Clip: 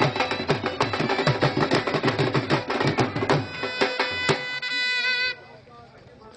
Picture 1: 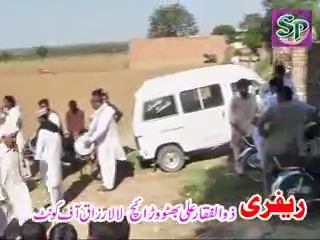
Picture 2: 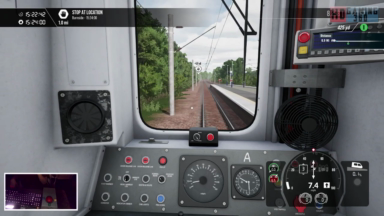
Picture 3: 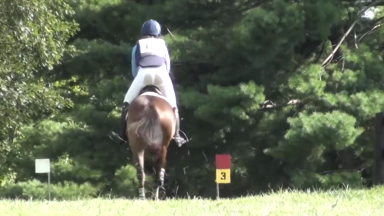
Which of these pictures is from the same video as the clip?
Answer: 1